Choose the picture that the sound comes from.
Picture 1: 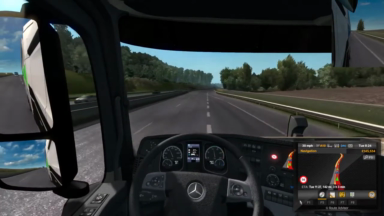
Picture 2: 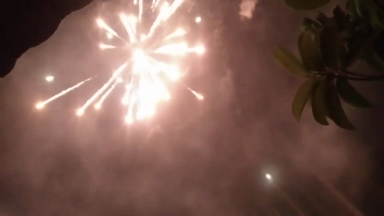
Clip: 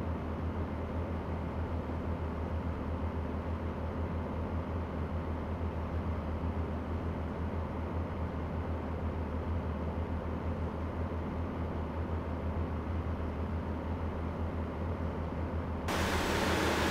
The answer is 1